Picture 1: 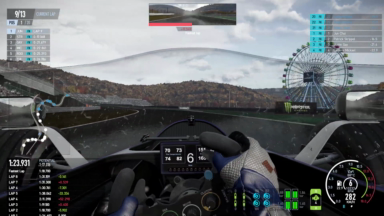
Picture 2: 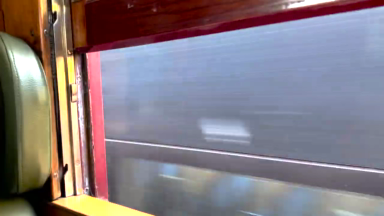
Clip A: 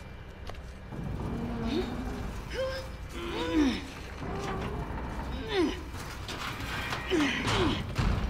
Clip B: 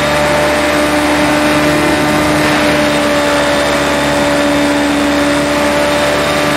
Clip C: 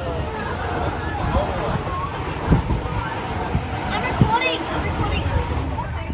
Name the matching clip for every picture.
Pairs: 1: B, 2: C